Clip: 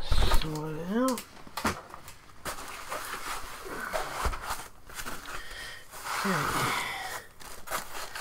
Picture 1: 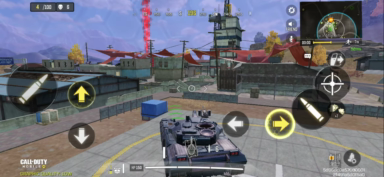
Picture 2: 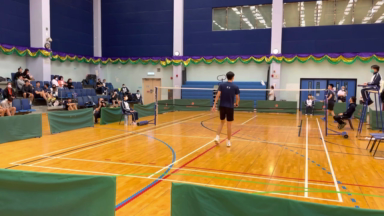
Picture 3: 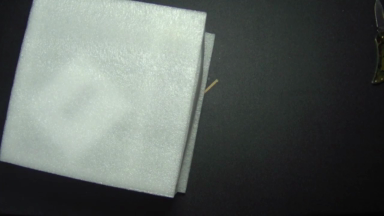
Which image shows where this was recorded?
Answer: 3